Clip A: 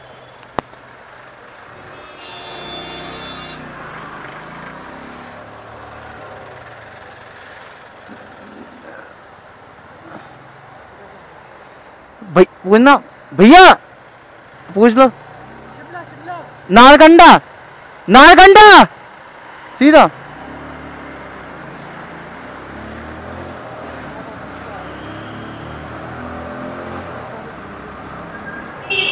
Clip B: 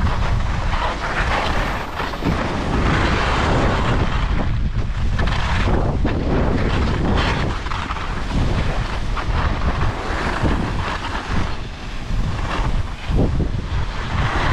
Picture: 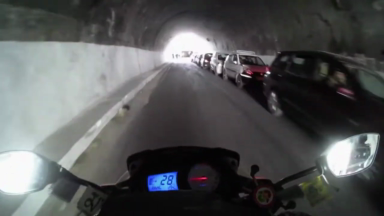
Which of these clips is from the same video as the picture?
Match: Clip A